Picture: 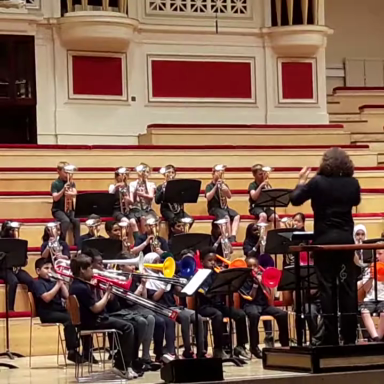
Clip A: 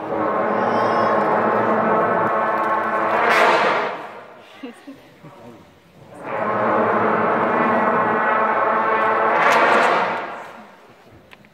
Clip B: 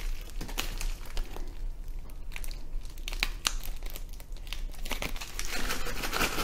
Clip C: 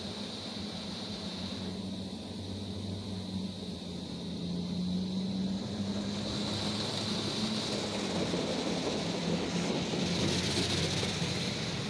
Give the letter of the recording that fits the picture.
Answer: A